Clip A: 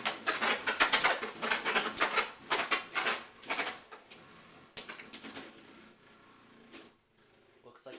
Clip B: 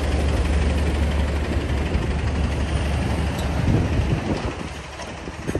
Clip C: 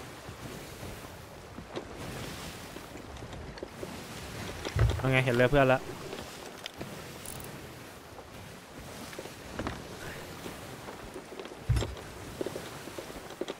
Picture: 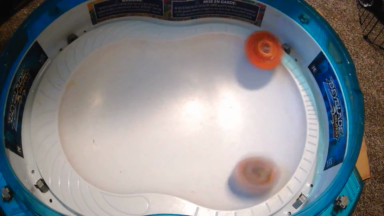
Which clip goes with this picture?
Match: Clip A